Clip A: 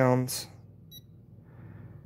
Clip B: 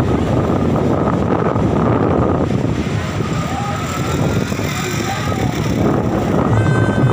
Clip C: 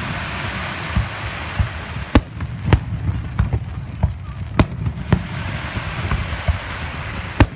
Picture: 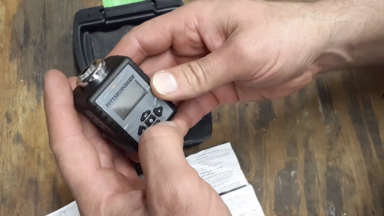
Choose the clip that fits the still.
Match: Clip A